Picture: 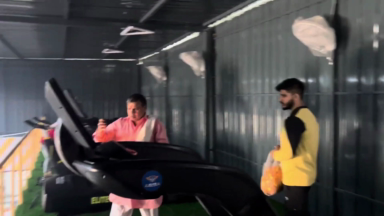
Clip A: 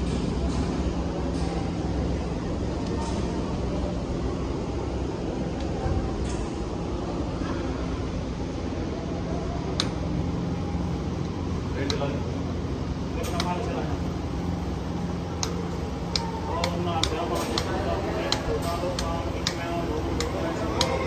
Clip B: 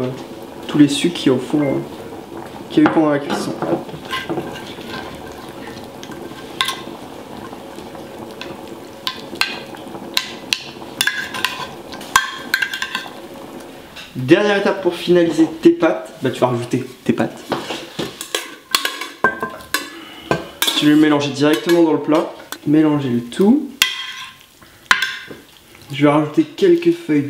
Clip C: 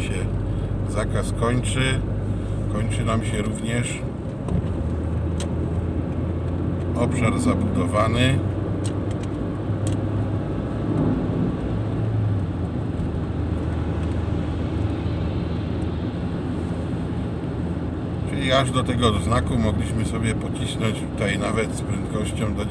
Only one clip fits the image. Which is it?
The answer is A